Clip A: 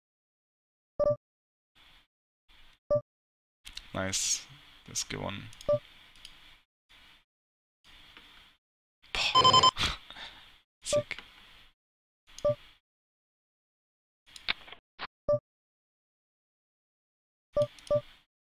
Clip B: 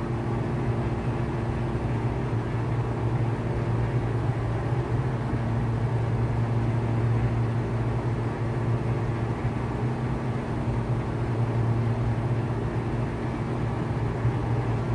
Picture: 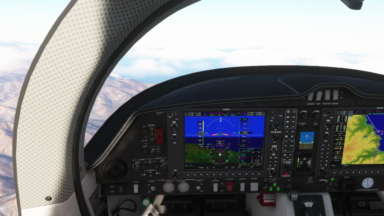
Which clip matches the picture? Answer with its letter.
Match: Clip B